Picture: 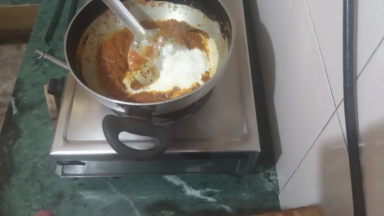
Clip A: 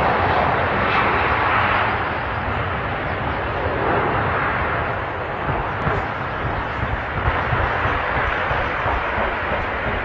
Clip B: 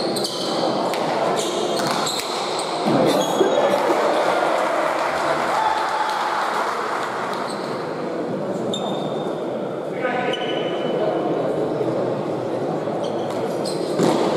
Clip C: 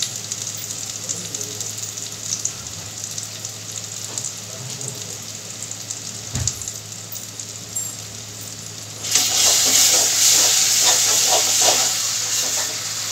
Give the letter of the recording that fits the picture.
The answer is C